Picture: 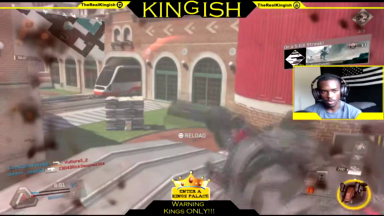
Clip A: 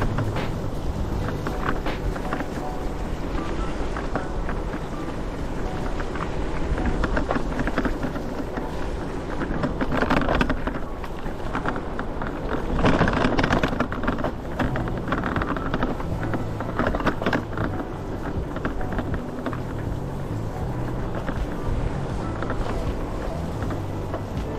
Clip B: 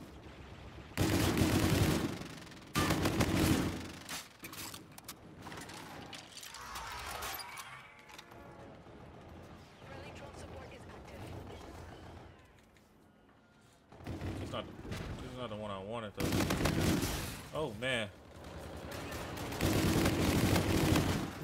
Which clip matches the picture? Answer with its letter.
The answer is B